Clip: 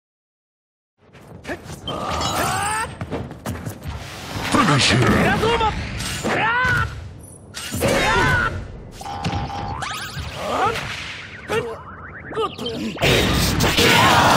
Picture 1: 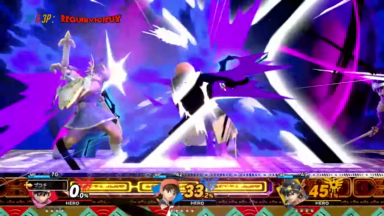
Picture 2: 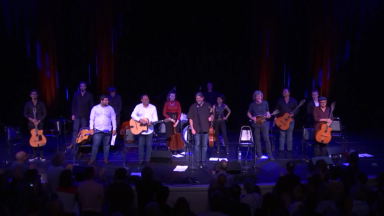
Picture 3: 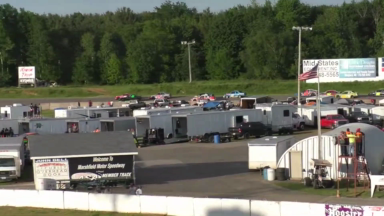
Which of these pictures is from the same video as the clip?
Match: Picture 1